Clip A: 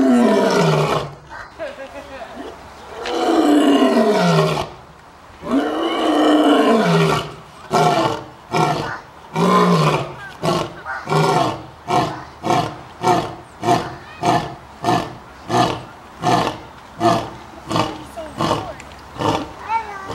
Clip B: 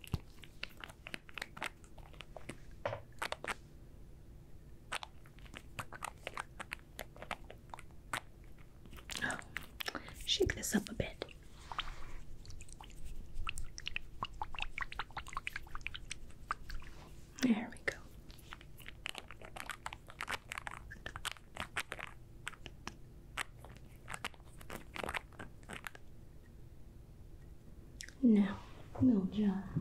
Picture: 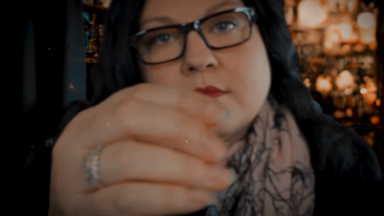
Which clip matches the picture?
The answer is B